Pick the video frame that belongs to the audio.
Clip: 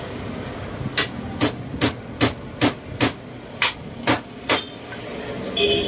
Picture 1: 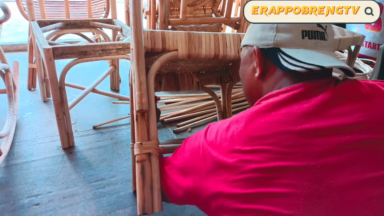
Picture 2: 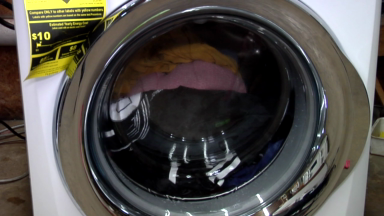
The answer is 1